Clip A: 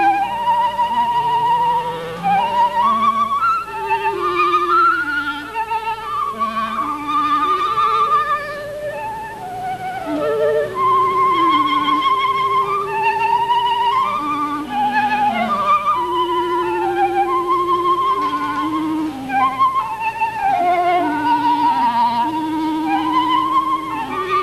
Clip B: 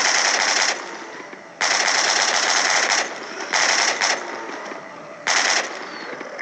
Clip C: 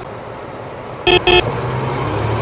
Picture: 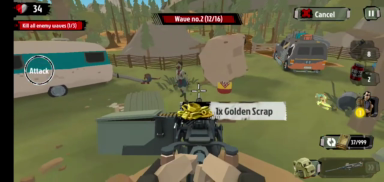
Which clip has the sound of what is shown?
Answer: B